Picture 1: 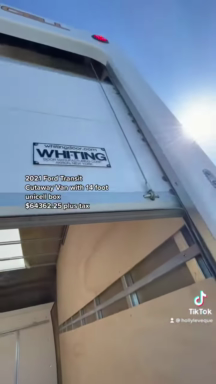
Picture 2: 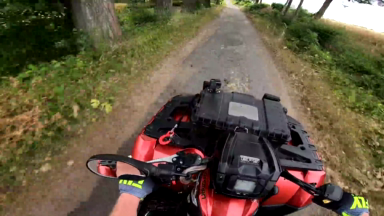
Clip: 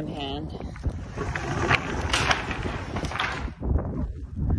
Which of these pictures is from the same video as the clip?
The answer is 1